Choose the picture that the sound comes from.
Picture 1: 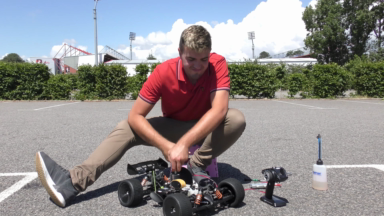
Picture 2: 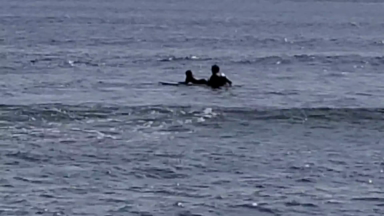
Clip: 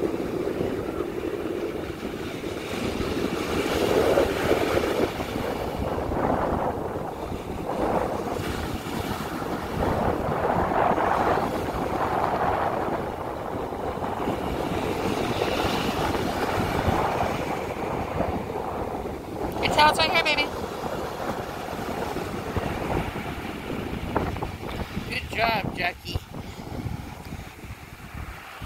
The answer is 2